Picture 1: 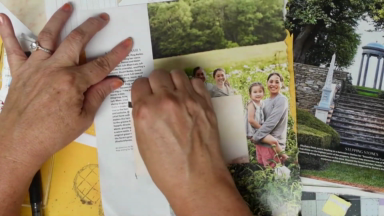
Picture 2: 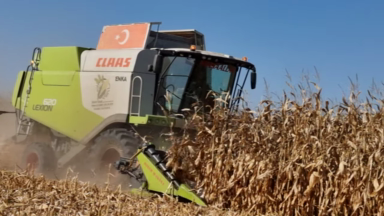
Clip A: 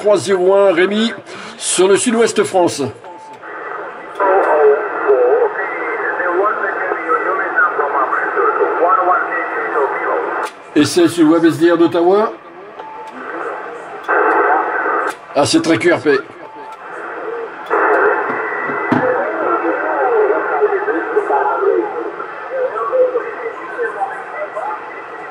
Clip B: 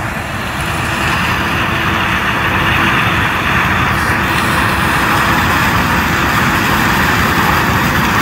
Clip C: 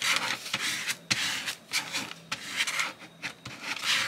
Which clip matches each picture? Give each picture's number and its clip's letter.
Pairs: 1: C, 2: B